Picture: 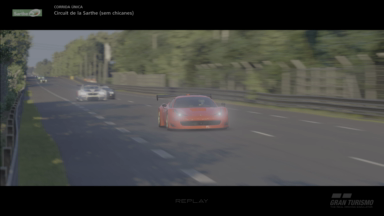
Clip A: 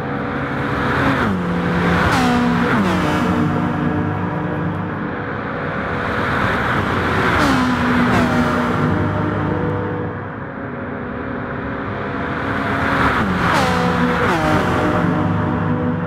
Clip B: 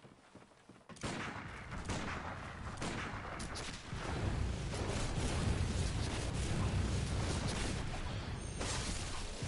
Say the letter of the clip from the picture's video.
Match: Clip A